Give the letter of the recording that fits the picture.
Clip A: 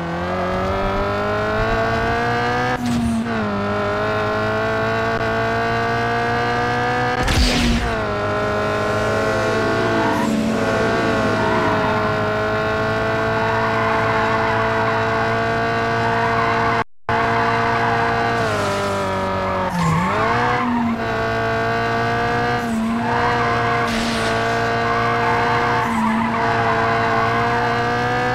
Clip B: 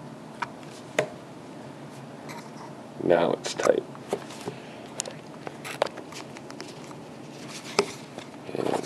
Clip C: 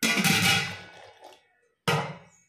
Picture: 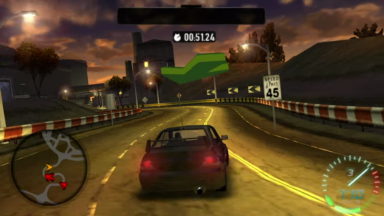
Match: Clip A